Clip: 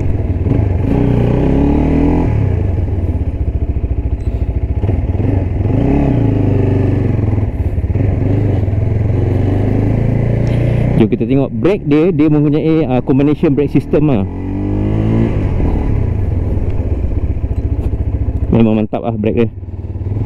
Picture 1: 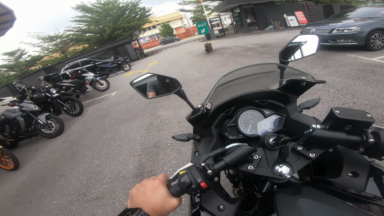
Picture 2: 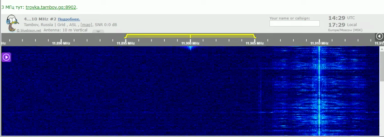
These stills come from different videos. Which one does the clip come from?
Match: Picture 1